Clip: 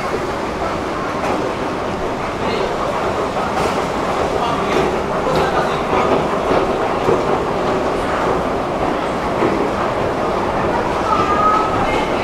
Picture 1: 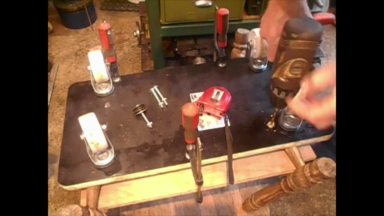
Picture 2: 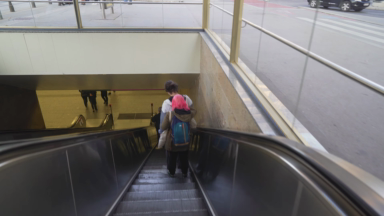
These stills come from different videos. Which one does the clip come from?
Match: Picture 2